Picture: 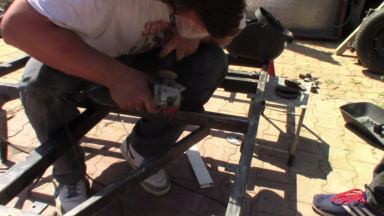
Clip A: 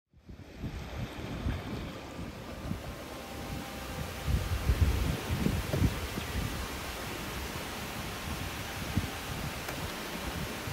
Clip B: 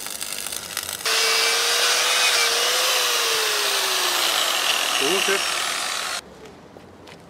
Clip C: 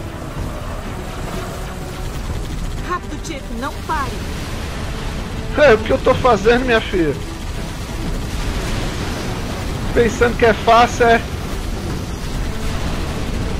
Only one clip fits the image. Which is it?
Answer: B